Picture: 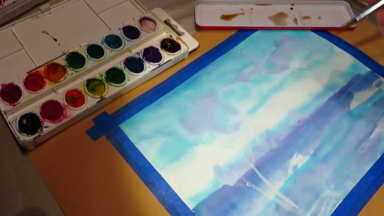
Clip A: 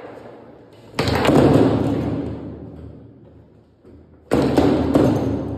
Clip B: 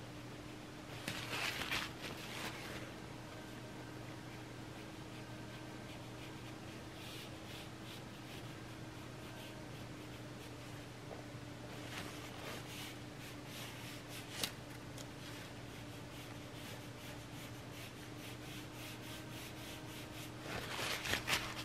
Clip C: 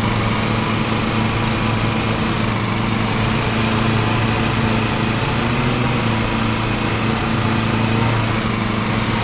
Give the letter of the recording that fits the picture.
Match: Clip B